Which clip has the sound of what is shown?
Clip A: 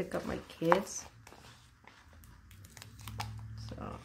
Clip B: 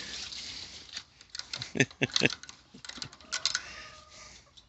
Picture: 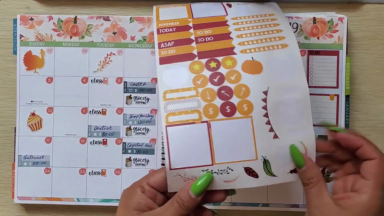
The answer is A